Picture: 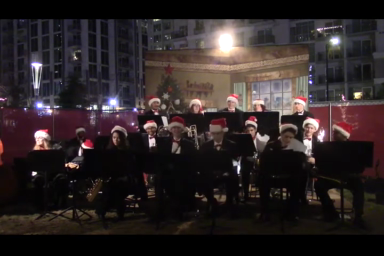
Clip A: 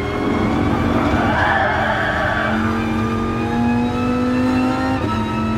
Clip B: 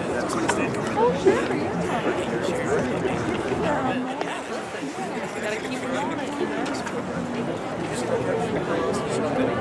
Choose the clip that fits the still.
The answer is B